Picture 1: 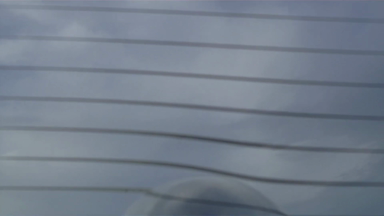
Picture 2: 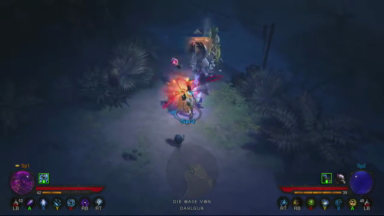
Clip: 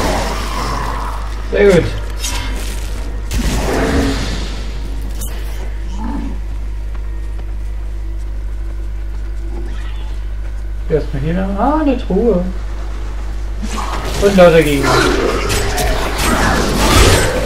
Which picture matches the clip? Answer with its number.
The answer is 2